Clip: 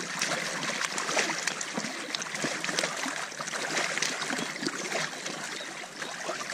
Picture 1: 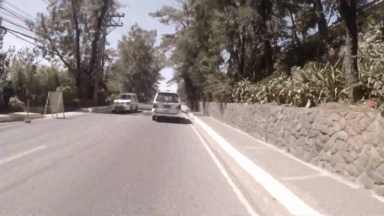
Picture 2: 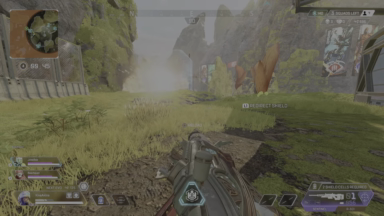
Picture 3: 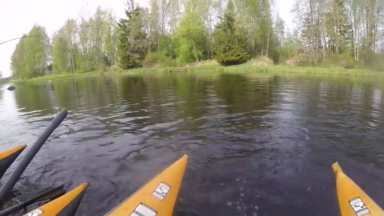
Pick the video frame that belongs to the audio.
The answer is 3